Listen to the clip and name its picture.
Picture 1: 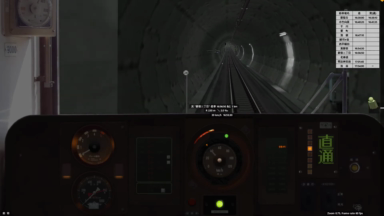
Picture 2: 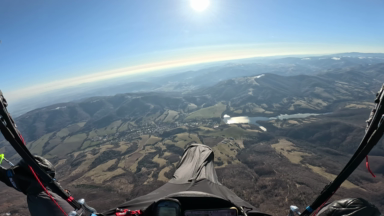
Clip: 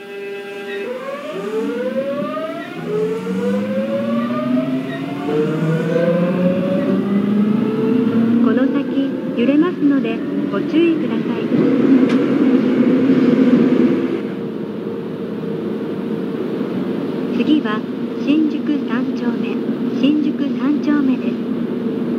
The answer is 1